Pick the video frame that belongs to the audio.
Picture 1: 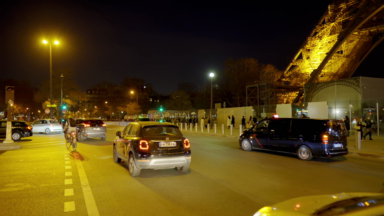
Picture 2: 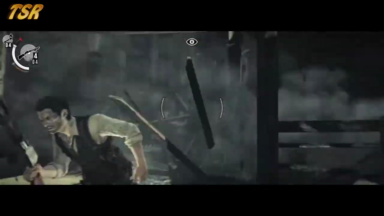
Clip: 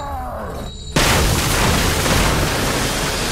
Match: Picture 2